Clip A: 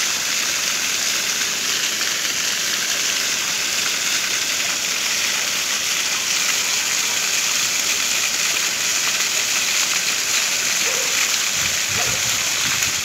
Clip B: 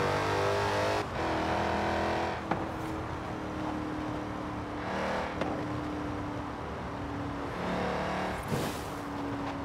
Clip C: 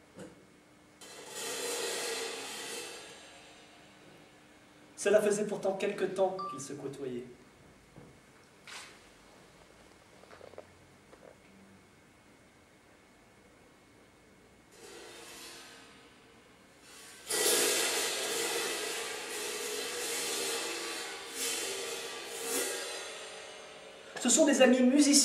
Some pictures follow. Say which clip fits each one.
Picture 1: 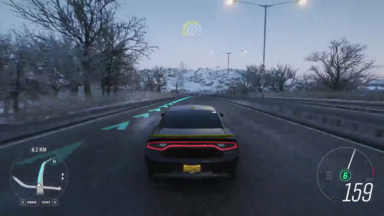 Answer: B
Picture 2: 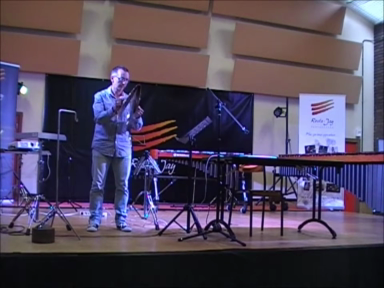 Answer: C